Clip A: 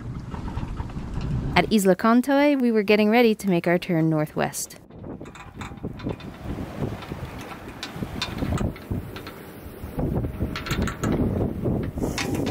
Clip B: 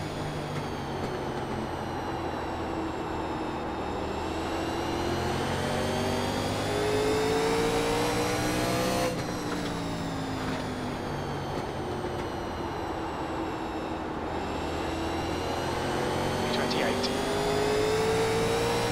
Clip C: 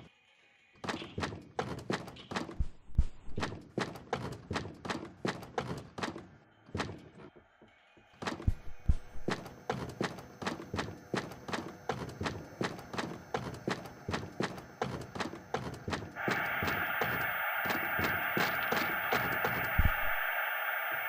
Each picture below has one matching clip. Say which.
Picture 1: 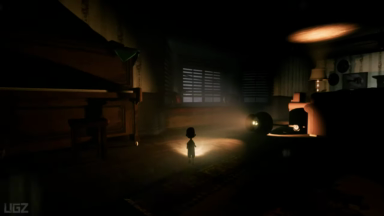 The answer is C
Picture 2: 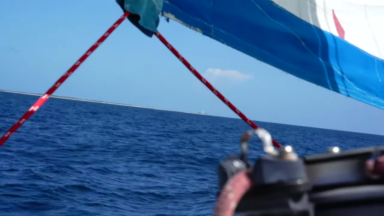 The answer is A